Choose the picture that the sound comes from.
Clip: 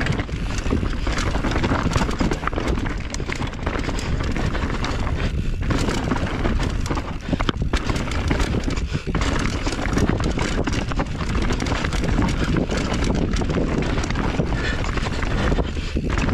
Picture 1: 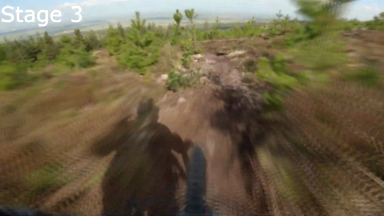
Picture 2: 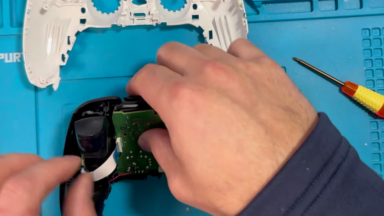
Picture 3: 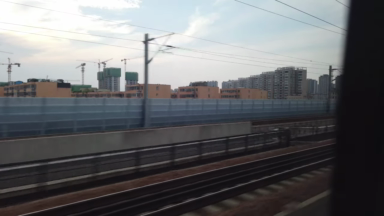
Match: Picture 1